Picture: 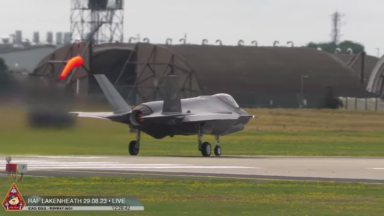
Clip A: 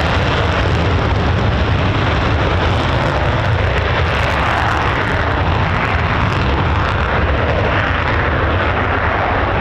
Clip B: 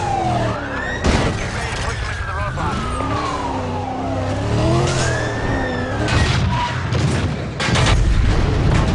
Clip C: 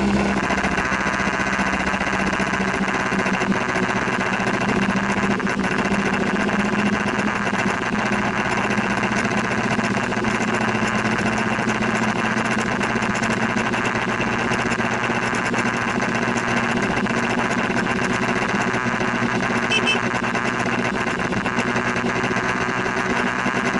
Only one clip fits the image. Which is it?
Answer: A